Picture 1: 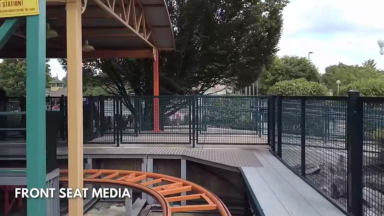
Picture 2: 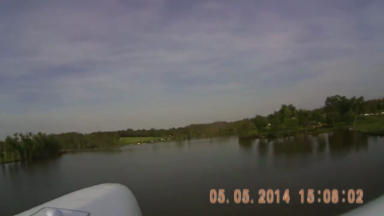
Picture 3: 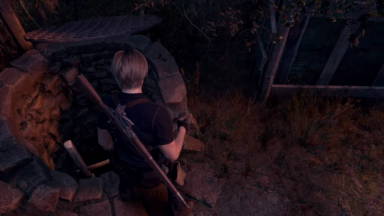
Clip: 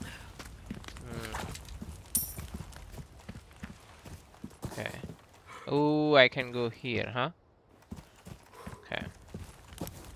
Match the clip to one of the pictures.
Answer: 3